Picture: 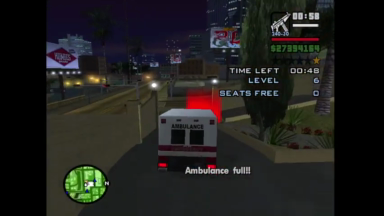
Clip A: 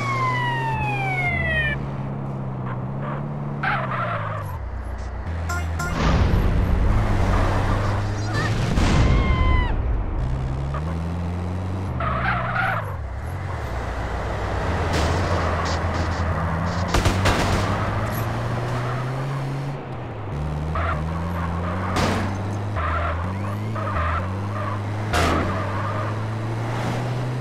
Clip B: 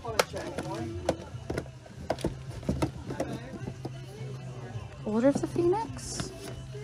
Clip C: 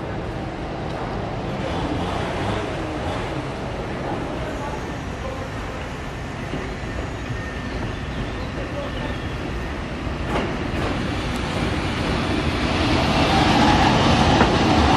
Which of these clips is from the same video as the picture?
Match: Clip A